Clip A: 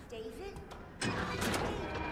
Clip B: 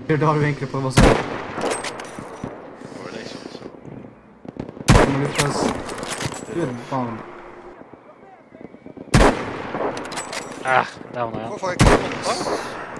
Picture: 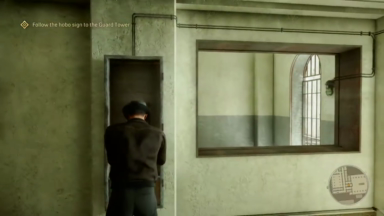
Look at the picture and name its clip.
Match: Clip A